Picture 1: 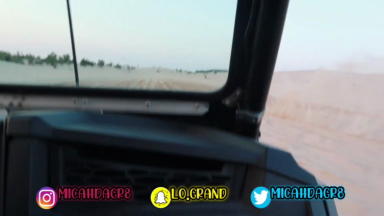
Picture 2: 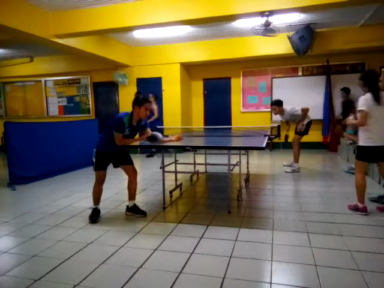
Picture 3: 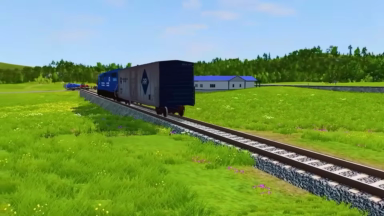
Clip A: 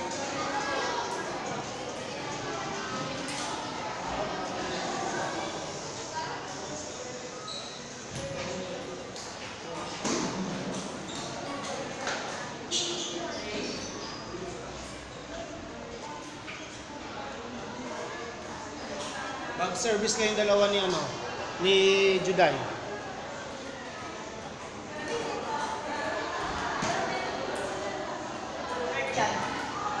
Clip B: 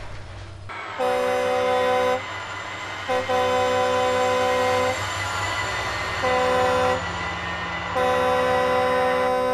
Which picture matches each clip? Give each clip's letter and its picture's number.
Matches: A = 2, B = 3